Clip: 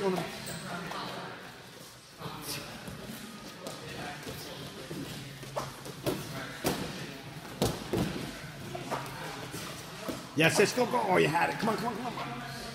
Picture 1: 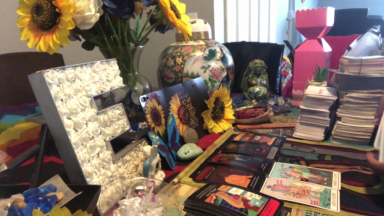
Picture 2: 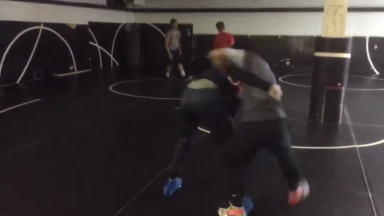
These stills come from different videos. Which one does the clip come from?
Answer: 2